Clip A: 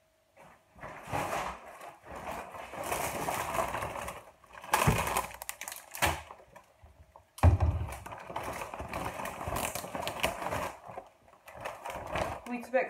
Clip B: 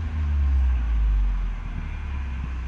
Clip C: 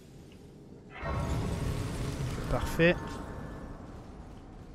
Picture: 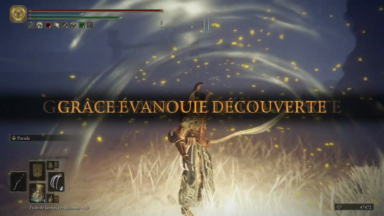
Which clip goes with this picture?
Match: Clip C